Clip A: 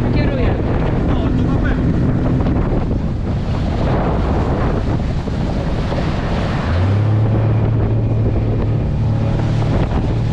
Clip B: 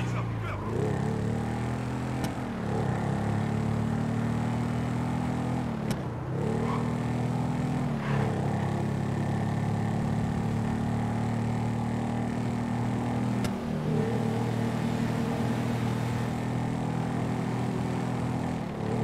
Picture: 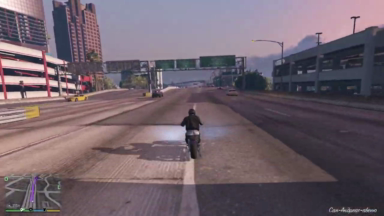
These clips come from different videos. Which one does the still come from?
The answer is B